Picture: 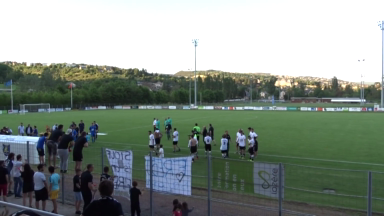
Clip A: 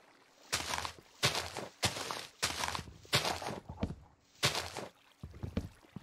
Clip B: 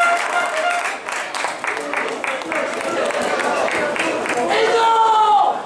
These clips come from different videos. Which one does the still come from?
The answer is B